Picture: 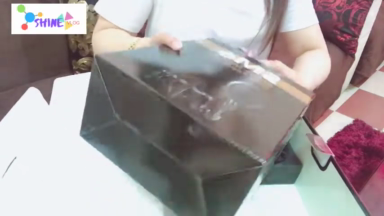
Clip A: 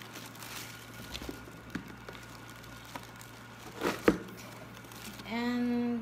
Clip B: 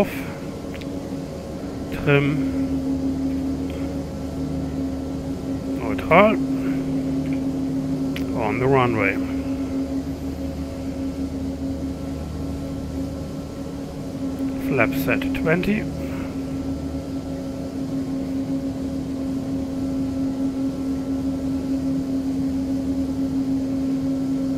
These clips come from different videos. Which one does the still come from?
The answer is A